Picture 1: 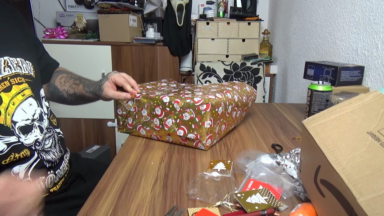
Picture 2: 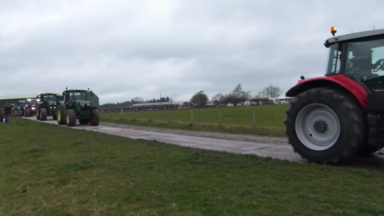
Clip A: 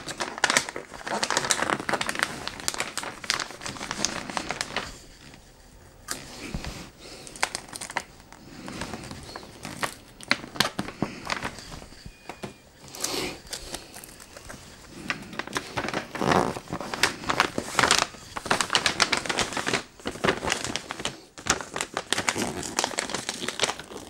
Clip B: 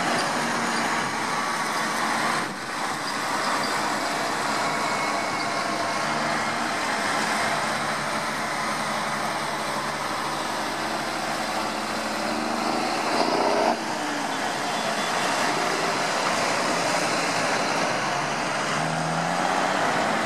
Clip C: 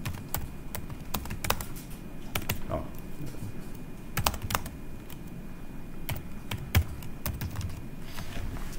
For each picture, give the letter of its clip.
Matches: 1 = A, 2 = B